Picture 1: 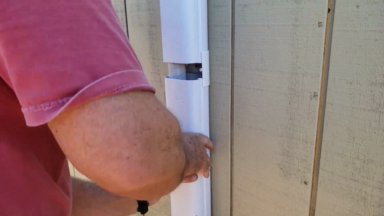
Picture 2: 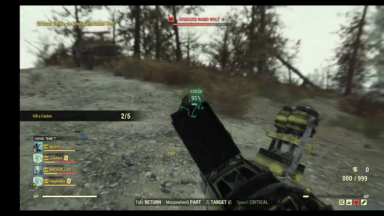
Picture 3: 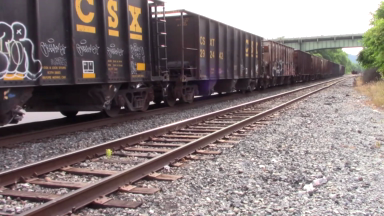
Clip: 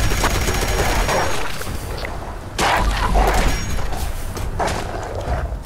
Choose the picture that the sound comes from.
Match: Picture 2